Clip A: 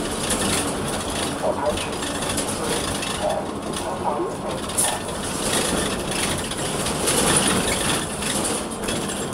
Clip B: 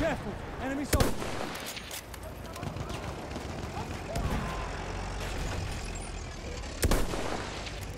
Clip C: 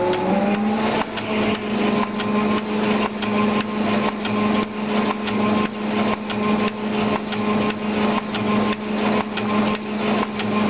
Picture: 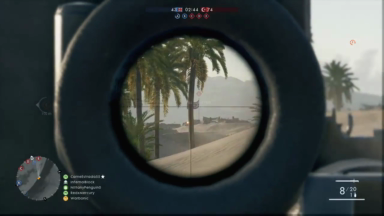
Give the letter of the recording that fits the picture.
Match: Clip B